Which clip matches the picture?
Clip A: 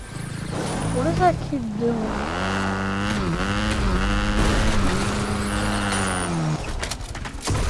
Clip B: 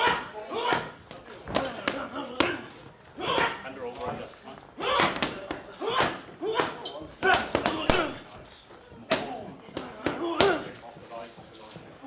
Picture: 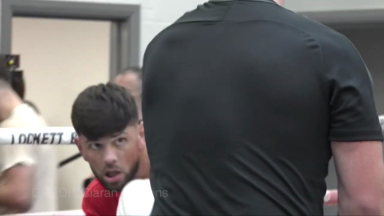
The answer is B